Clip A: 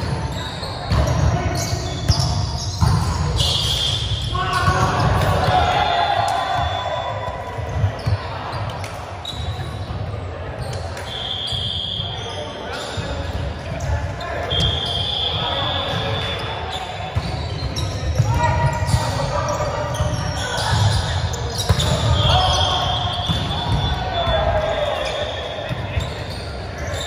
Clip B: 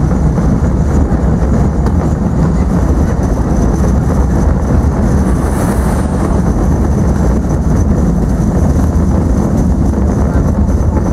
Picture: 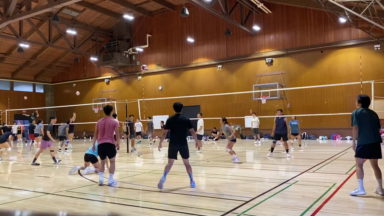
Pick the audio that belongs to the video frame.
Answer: A